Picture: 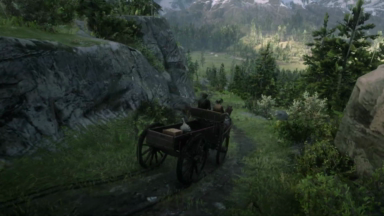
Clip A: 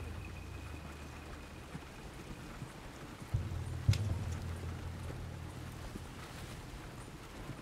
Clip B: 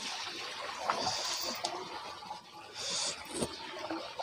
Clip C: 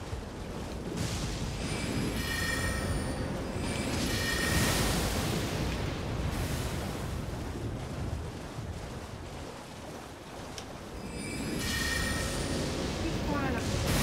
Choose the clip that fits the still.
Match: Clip A